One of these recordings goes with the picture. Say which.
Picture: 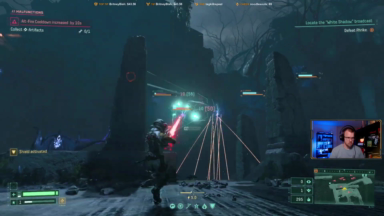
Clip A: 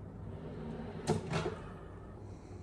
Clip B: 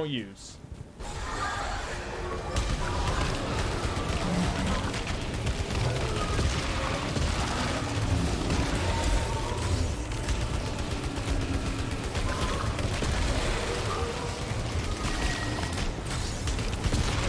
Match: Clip B